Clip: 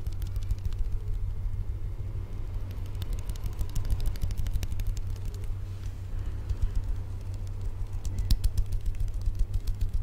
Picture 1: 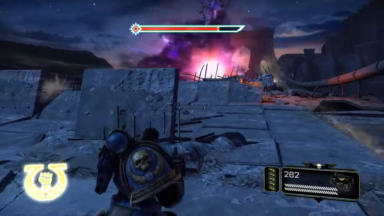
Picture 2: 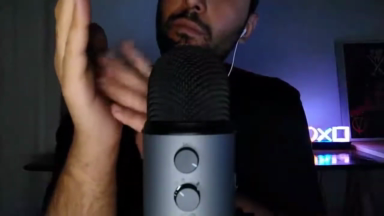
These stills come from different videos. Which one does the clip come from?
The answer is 2